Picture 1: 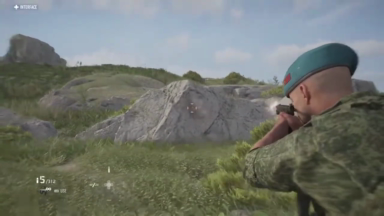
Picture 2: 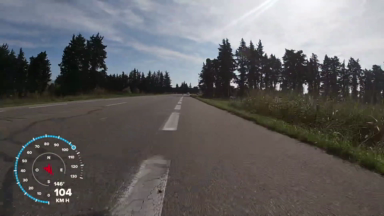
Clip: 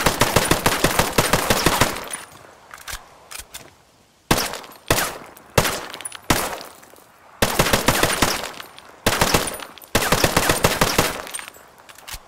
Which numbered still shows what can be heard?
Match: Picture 1